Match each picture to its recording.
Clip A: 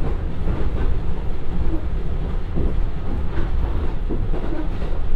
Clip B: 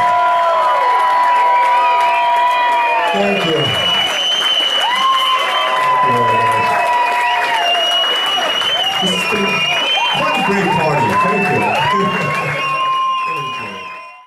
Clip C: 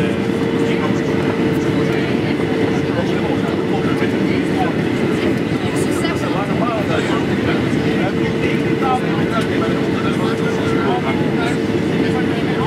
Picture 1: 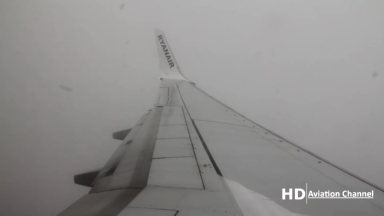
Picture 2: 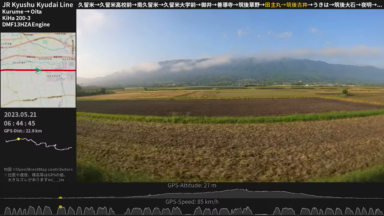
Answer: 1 C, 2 A